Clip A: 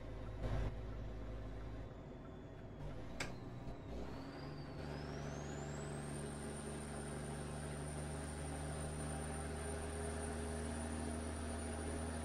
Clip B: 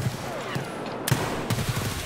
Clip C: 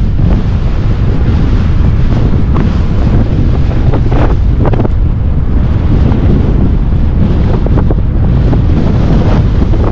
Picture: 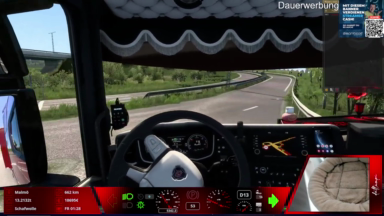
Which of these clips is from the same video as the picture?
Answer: A